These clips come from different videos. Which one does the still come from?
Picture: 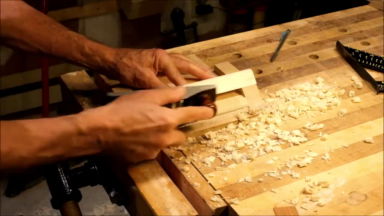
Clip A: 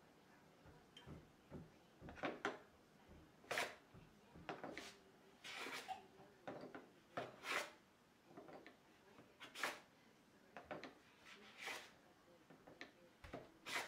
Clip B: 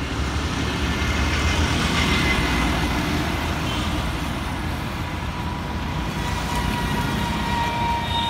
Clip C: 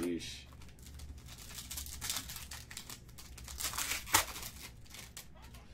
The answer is A